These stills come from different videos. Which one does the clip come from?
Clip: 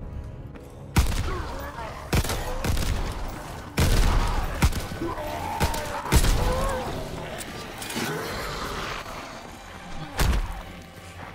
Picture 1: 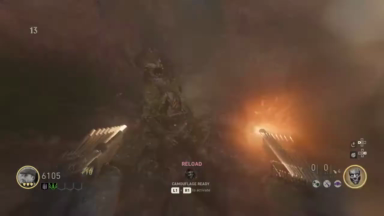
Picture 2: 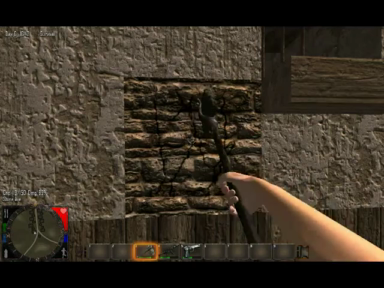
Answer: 1